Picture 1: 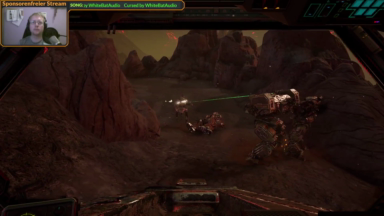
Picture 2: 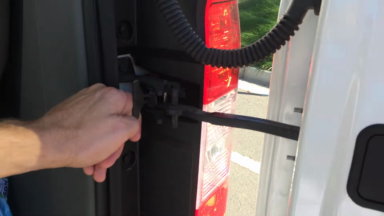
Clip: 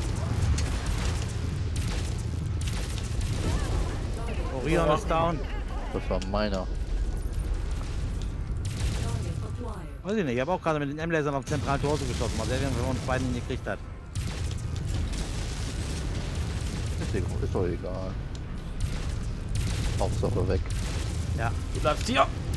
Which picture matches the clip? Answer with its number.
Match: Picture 1